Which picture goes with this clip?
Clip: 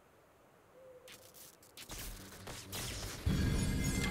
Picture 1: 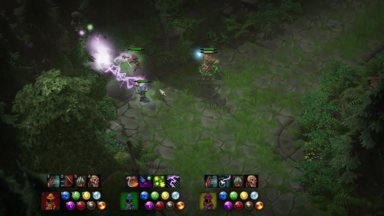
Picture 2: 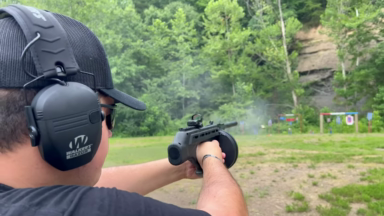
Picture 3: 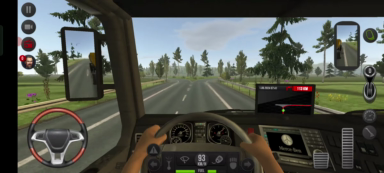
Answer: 1